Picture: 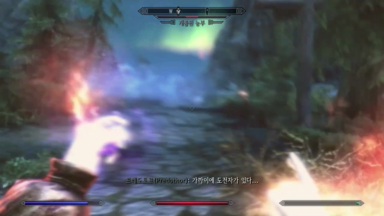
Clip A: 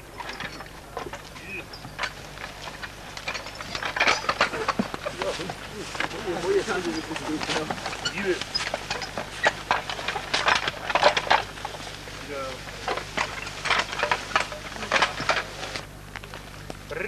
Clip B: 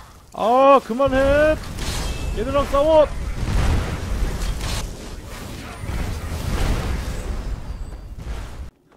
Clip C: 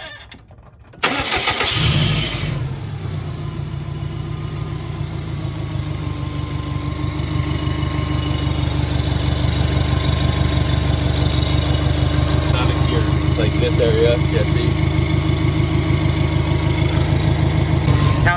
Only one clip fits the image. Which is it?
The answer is B